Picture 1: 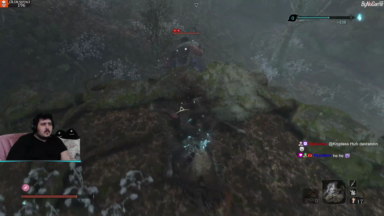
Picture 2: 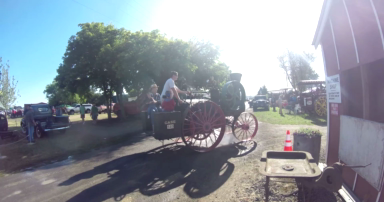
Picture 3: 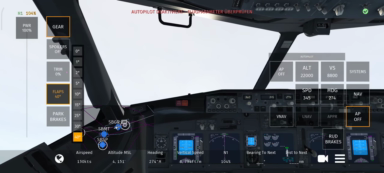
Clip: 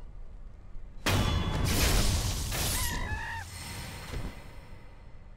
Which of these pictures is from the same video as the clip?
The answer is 1